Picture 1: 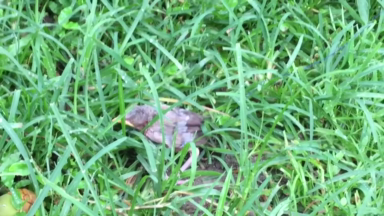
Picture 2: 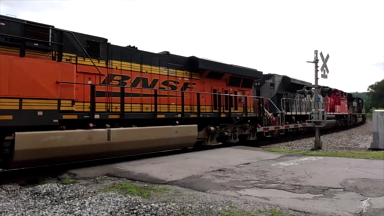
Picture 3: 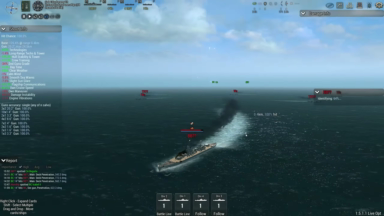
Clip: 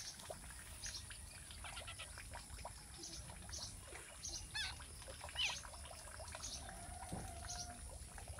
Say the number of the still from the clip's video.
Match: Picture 1